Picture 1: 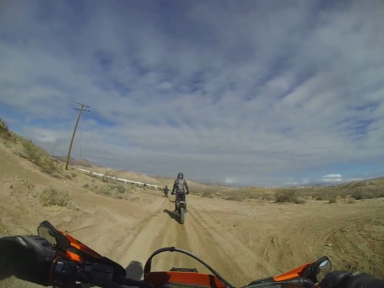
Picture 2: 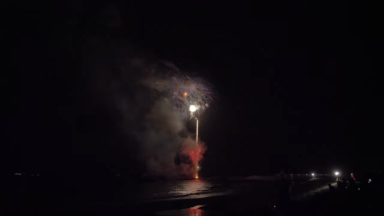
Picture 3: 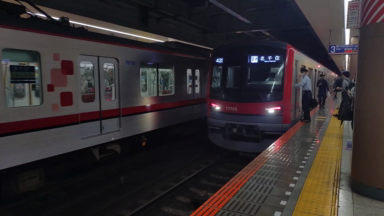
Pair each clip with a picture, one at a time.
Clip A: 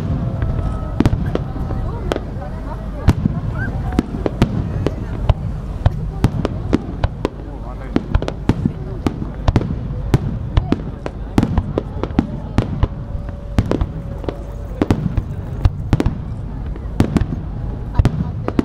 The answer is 2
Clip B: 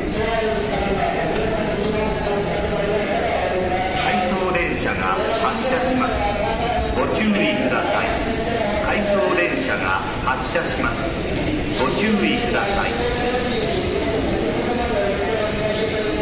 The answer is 3